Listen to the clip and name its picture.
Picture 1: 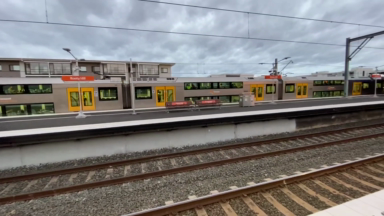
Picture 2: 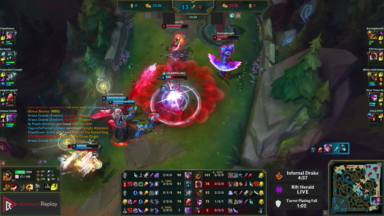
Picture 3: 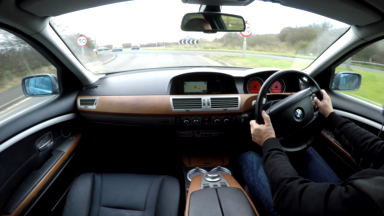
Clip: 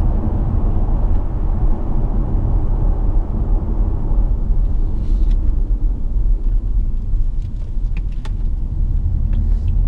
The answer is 3